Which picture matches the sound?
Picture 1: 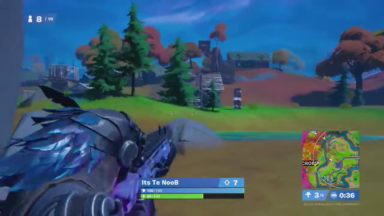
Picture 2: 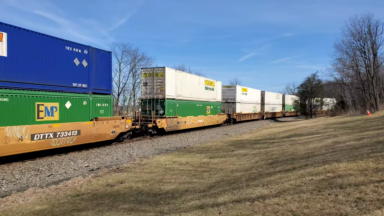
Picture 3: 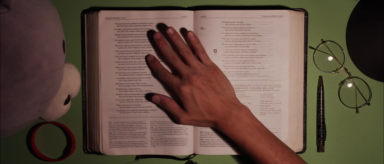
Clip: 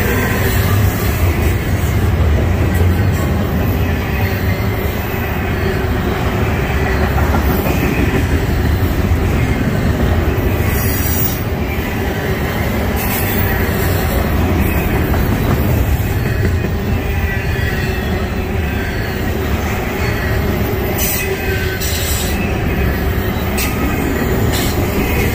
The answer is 2